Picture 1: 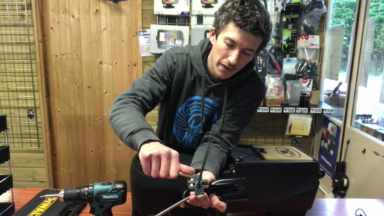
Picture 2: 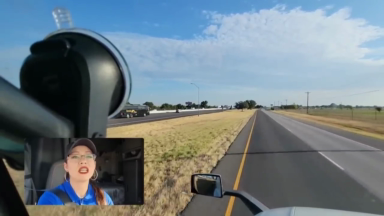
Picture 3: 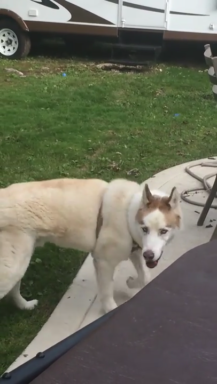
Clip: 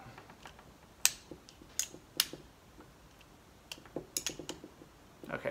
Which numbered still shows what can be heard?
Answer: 1